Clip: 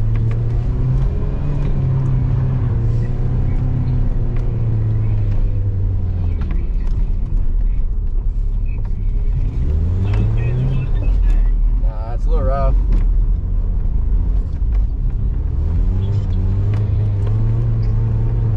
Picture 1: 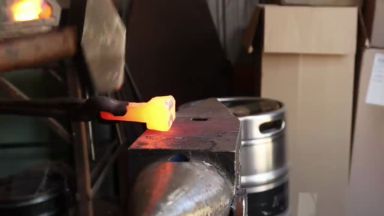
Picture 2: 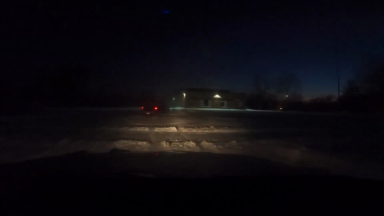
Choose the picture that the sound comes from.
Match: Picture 2